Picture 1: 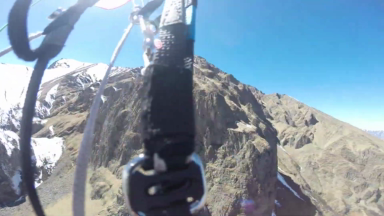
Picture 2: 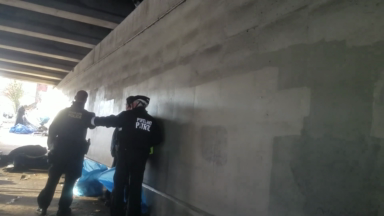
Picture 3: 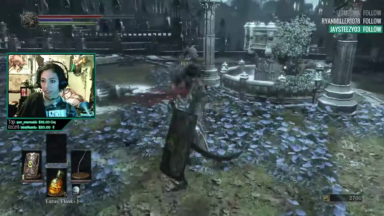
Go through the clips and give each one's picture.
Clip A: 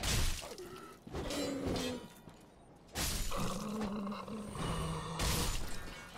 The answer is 3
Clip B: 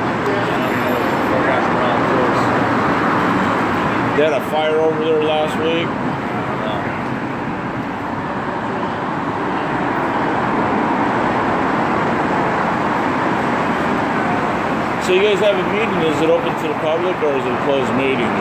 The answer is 2